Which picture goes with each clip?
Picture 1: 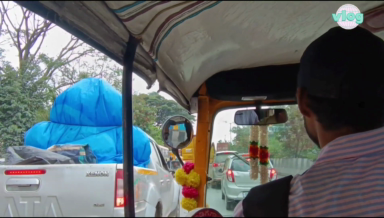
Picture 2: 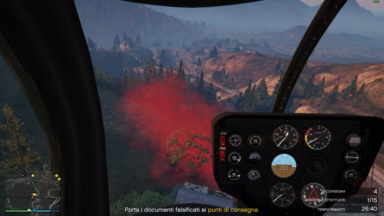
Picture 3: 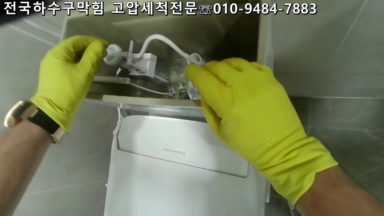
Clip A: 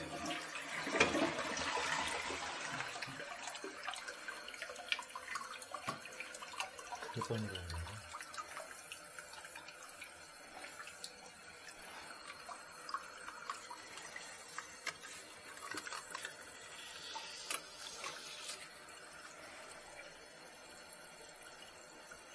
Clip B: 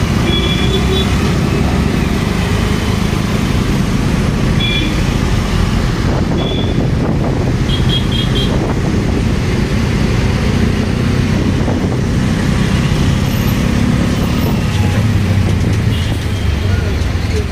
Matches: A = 3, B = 1